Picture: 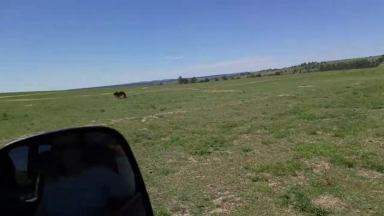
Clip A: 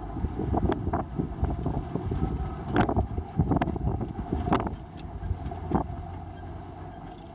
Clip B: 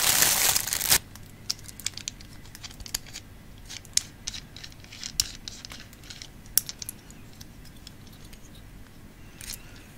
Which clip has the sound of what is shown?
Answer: A